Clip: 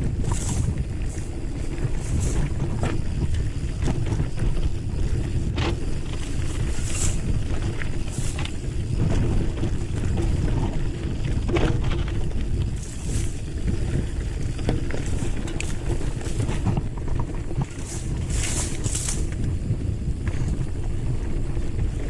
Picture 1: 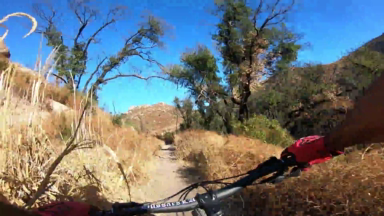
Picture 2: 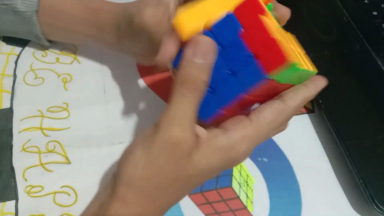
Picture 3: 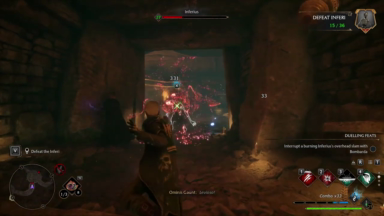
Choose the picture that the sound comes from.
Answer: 1